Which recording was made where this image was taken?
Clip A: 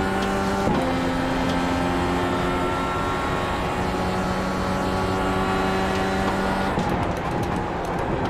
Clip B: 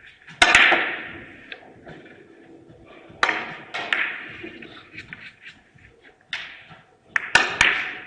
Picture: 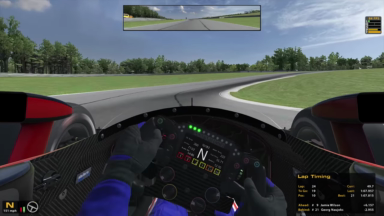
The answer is A